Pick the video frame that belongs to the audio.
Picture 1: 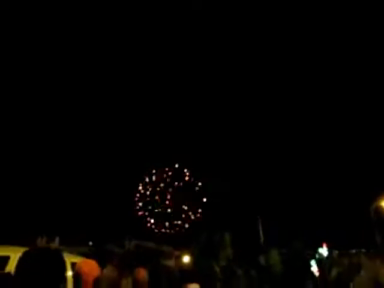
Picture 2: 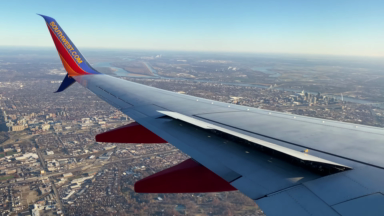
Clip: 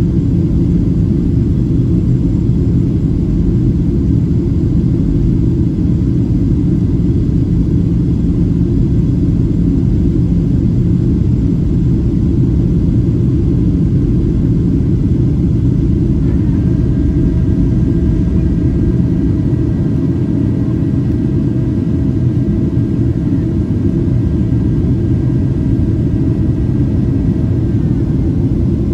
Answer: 2